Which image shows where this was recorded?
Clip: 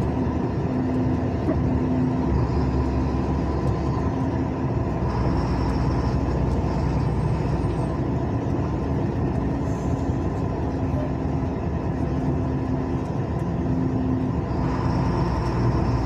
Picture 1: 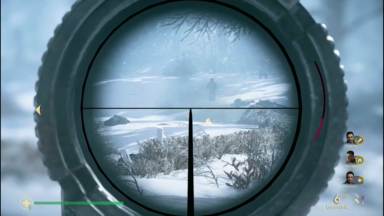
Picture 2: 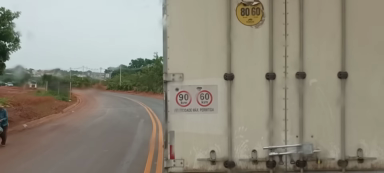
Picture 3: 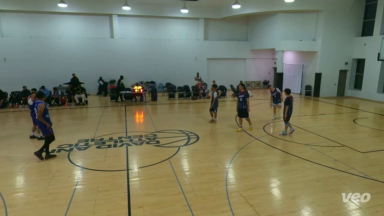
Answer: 2